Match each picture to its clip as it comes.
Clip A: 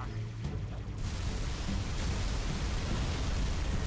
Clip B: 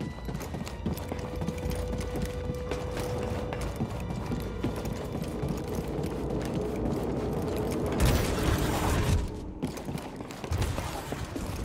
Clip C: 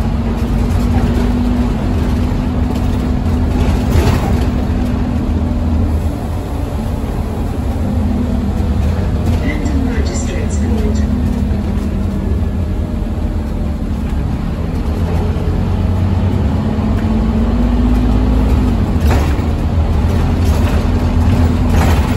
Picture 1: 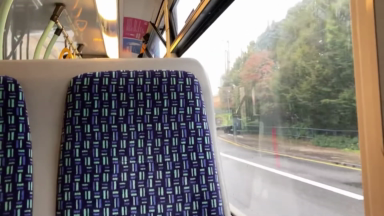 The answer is C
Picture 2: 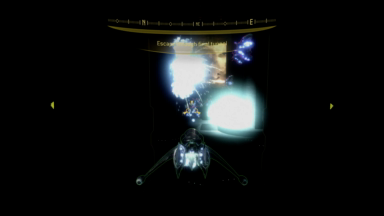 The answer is A